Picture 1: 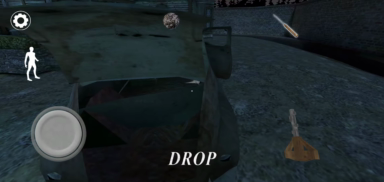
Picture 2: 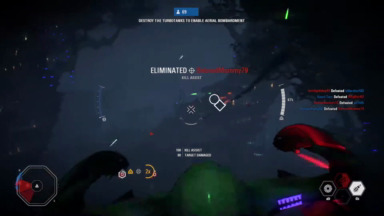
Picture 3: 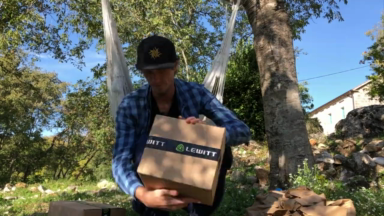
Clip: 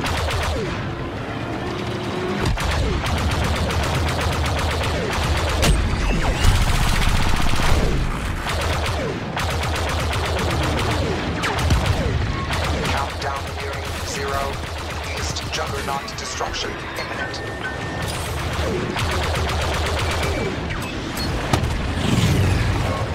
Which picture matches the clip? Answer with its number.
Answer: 2